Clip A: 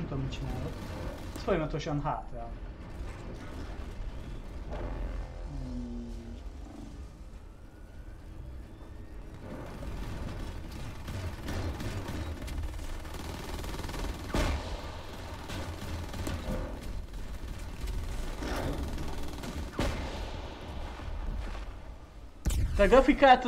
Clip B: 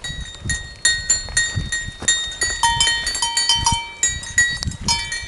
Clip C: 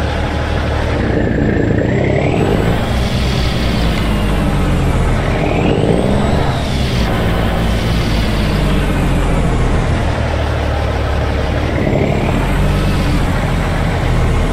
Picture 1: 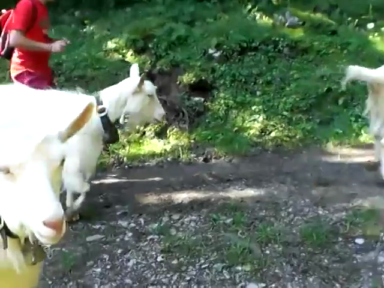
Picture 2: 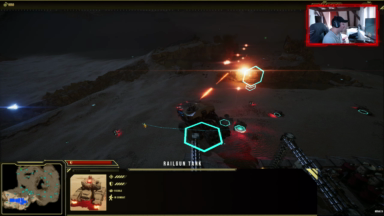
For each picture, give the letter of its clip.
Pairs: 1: B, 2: A